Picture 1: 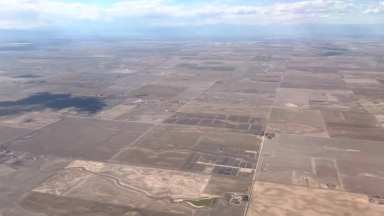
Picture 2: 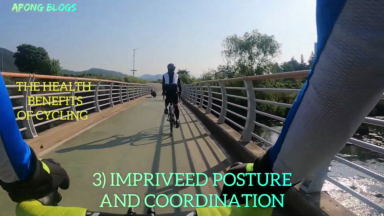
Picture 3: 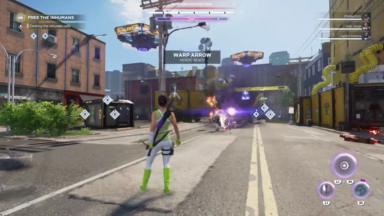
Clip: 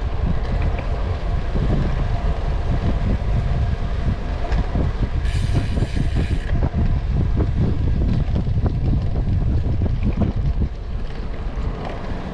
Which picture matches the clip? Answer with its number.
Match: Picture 2